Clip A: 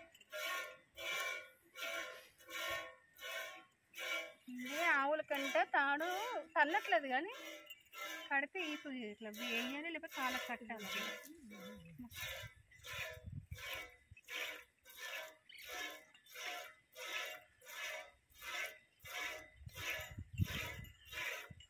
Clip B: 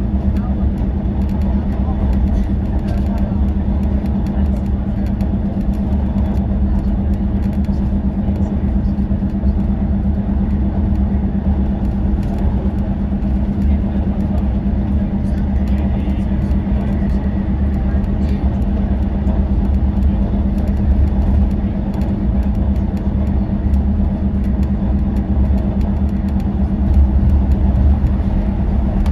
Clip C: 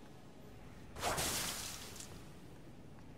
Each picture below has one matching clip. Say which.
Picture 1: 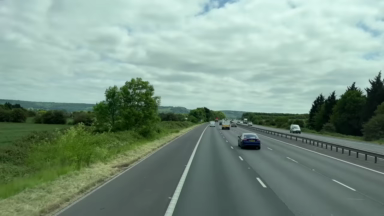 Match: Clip B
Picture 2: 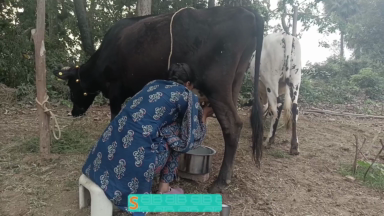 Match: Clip A